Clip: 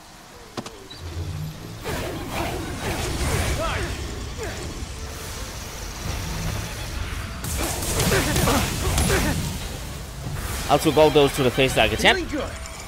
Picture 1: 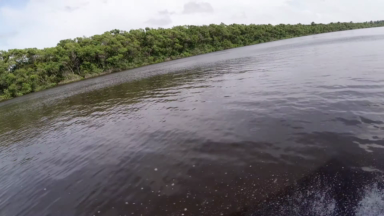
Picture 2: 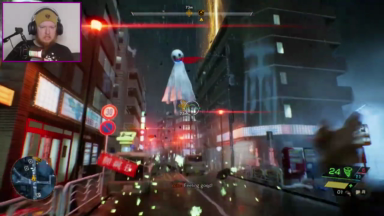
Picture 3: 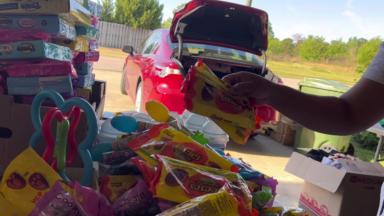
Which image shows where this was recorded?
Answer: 2